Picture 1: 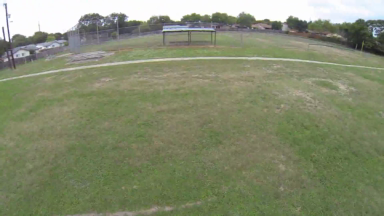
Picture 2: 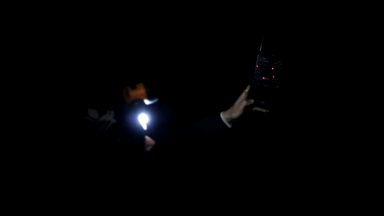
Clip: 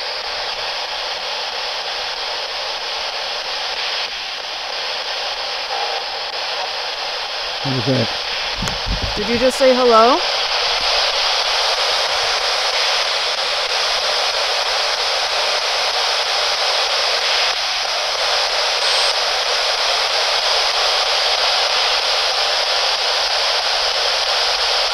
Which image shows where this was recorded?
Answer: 2